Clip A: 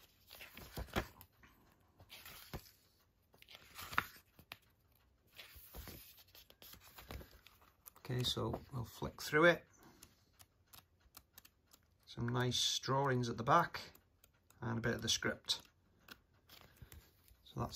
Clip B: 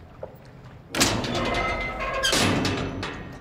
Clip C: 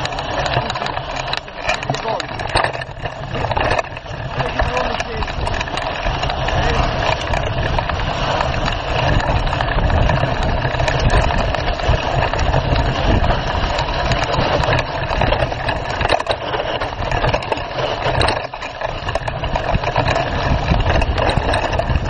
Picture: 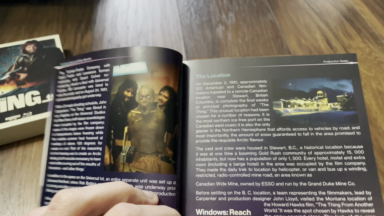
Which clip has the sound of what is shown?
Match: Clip A